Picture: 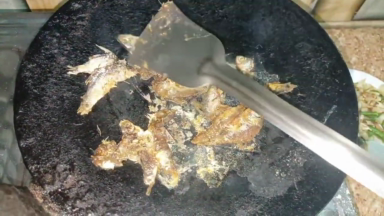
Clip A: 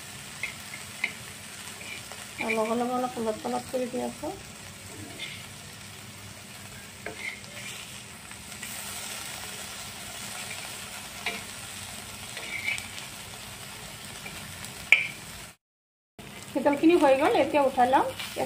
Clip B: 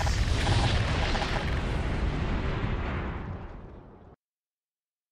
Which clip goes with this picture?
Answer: A